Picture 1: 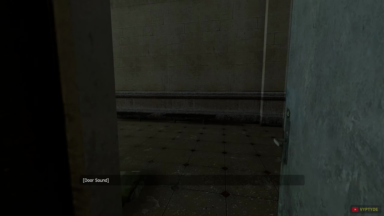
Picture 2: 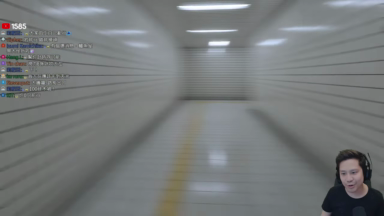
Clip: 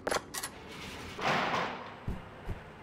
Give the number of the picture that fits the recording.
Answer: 1